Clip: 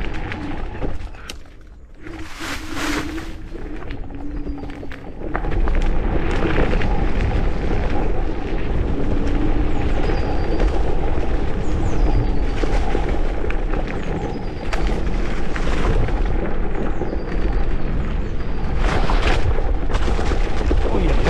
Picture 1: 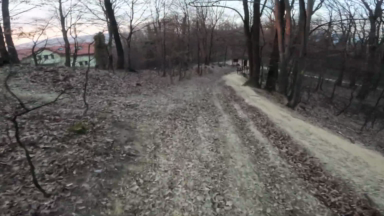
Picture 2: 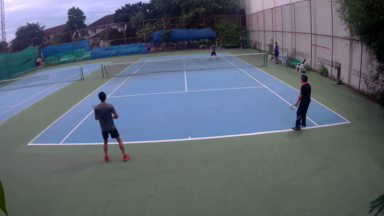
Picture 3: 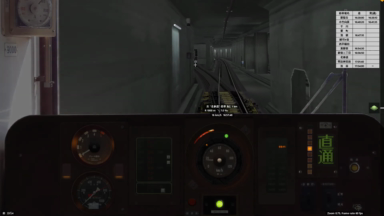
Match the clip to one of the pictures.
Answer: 1